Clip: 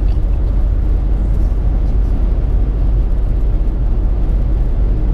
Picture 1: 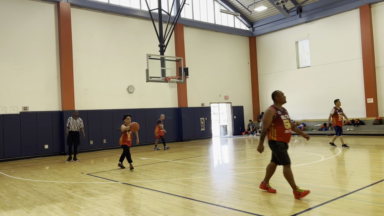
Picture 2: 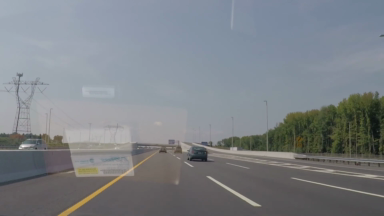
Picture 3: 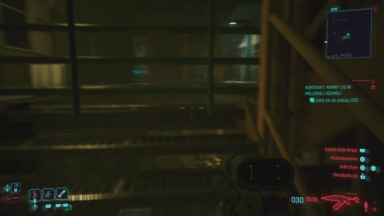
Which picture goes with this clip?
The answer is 2